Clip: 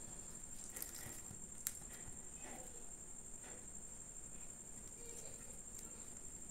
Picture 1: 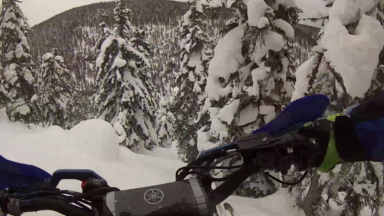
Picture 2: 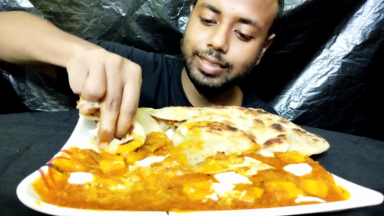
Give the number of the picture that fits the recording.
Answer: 2